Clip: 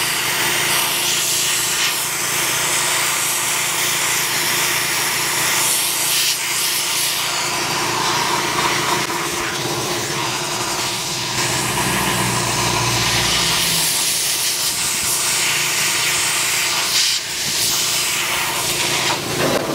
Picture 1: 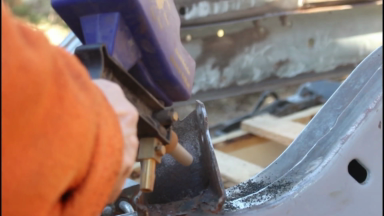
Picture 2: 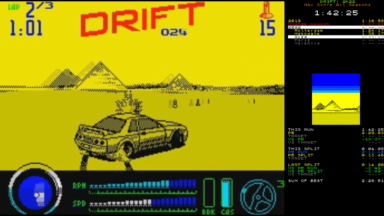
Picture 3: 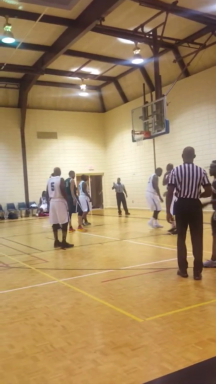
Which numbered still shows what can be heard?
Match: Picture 1